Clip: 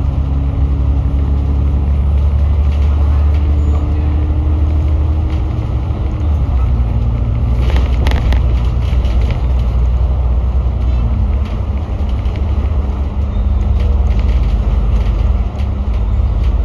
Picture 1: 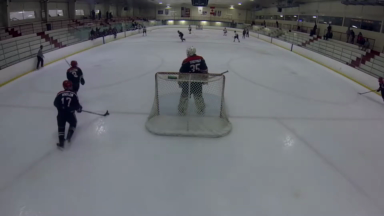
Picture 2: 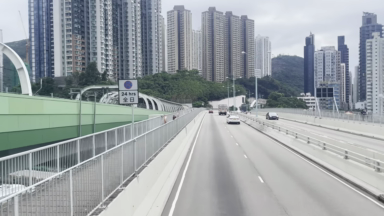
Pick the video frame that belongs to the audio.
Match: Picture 2